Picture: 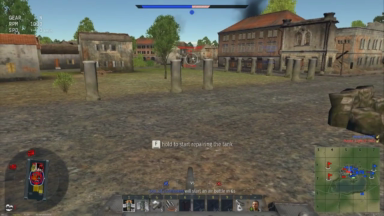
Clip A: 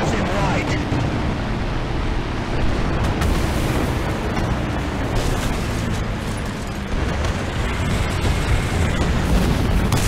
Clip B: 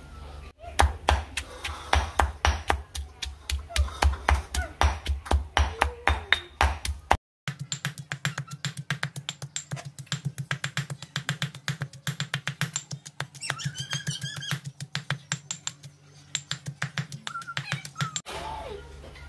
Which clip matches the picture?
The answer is A